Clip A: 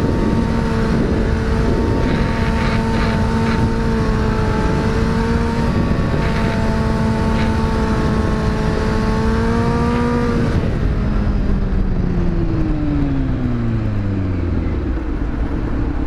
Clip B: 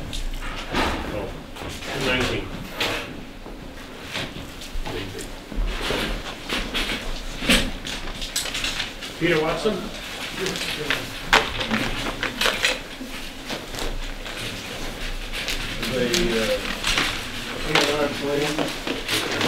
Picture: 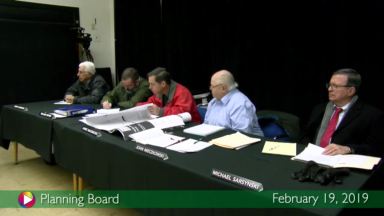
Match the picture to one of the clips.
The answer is B